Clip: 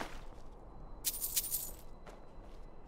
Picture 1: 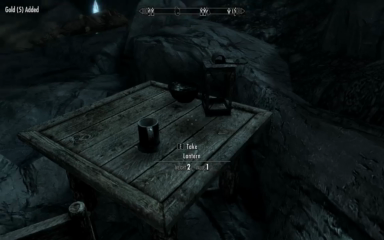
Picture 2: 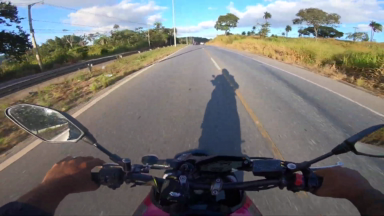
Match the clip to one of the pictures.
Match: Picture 1